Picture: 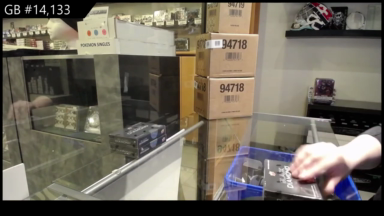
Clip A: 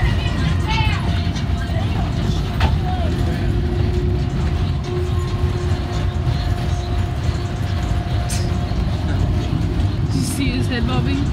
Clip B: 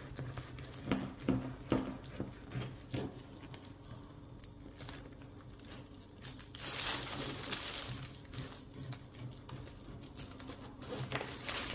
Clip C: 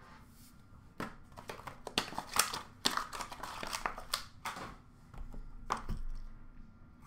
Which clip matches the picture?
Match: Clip C